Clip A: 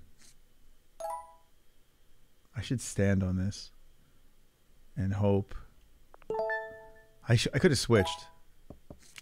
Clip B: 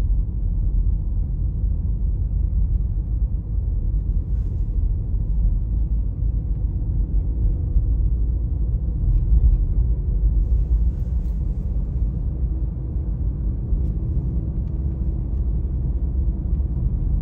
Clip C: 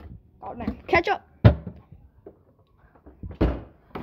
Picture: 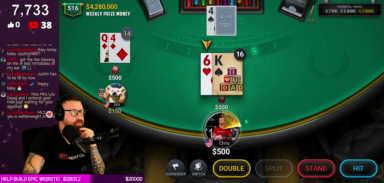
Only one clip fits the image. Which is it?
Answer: A